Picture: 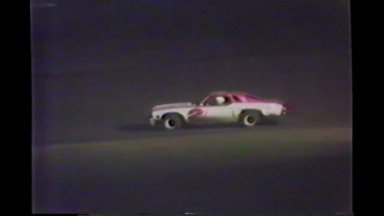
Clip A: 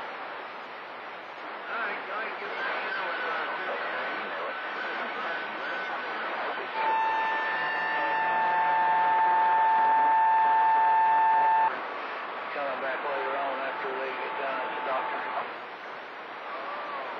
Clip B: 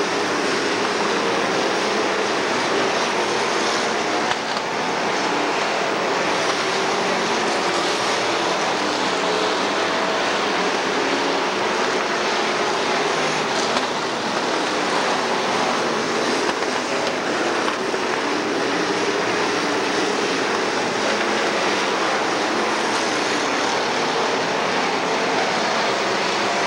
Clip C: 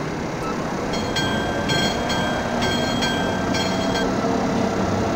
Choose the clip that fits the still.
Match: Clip B